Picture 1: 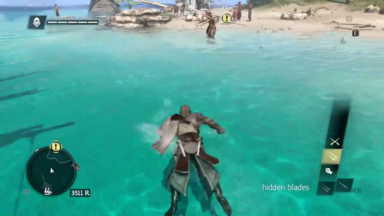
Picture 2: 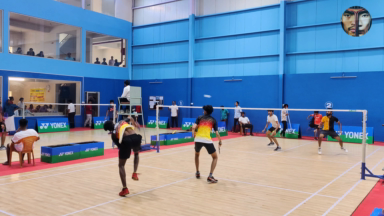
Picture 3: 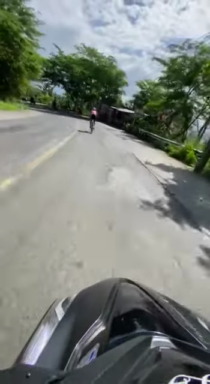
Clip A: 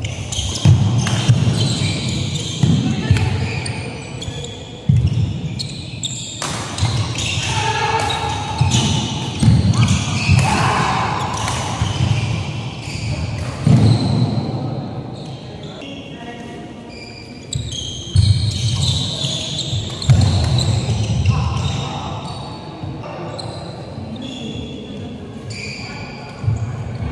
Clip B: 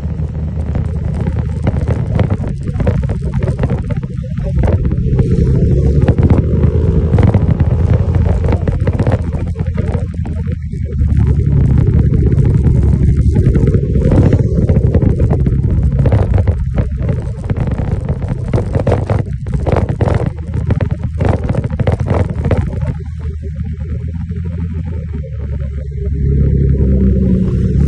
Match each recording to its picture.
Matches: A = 2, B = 3